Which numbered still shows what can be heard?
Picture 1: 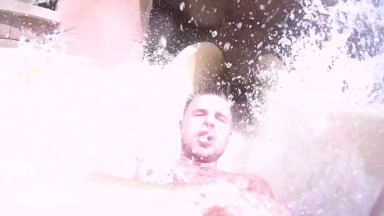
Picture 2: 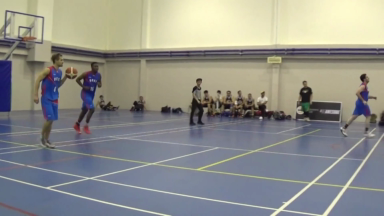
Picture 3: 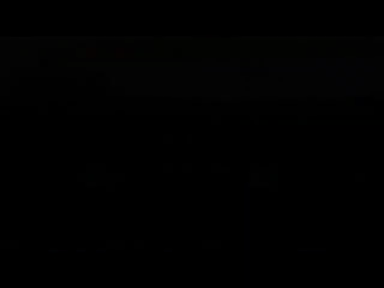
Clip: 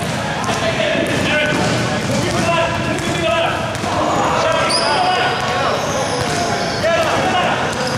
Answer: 2